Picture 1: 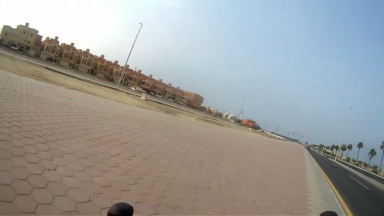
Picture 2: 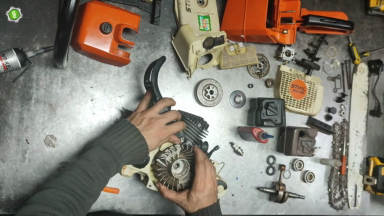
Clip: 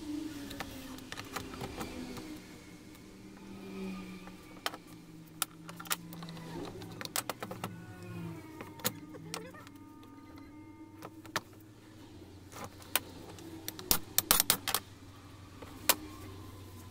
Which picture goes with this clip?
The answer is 2